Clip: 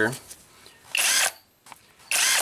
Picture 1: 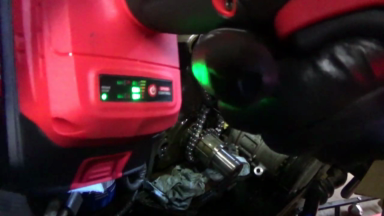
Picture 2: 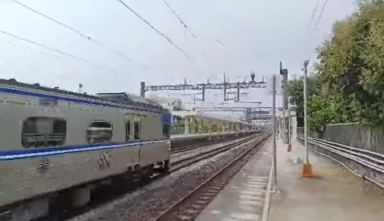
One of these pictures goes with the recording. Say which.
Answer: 1